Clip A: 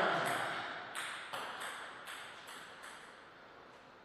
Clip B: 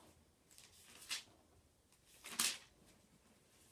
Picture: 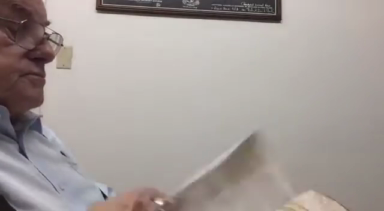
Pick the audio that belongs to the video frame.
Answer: B